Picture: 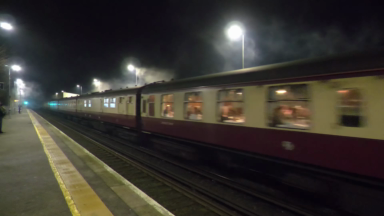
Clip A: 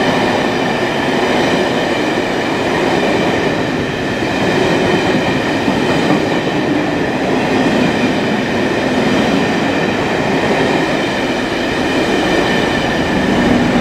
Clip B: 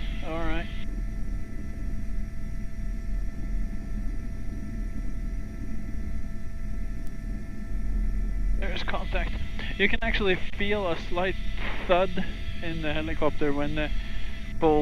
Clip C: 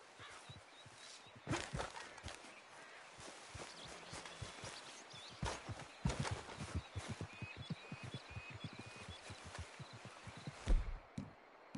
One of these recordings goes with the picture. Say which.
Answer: A